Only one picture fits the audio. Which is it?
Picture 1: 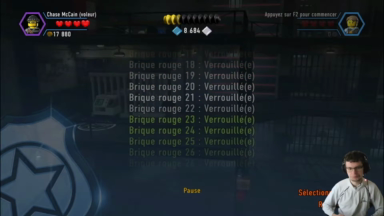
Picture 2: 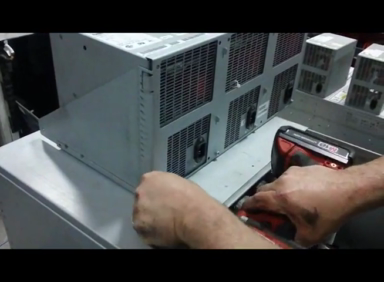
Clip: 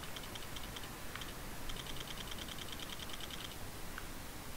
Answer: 1